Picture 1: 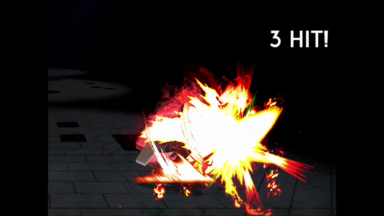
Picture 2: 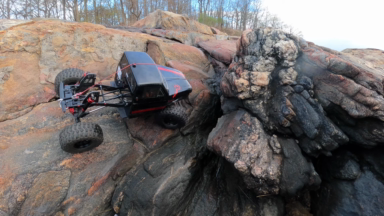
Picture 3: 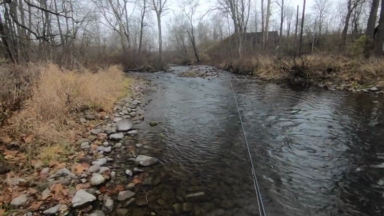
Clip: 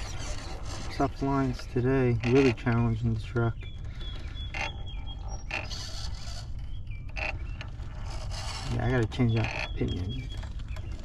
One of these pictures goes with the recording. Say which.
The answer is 2